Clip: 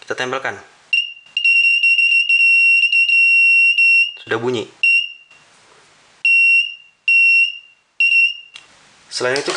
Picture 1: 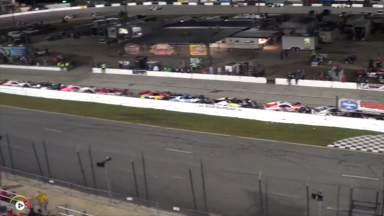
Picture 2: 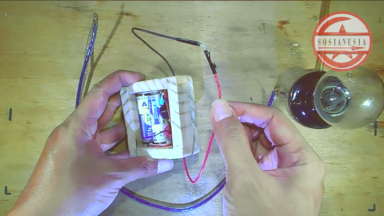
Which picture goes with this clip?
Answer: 2